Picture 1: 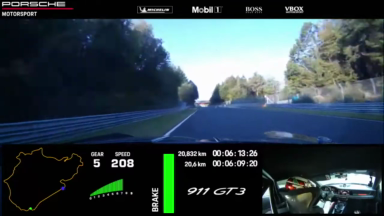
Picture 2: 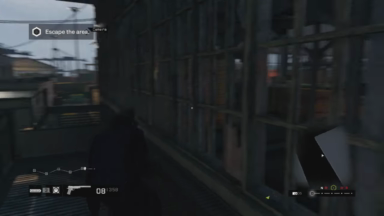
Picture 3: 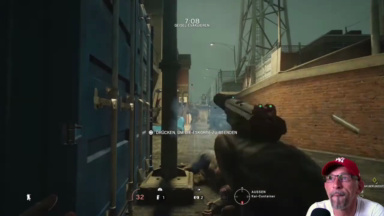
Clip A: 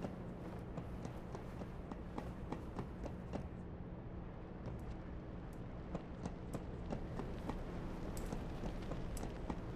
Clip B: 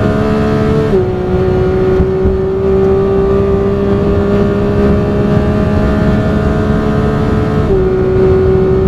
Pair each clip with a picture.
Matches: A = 2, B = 1